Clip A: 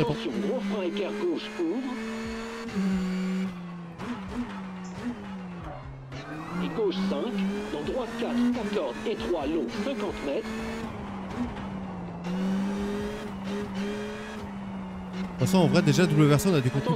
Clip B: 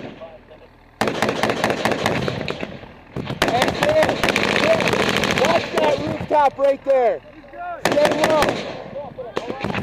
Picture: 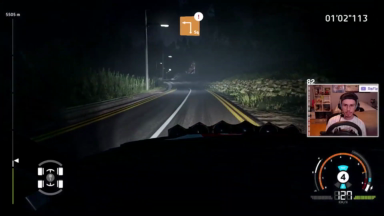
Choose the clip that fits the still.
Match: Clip A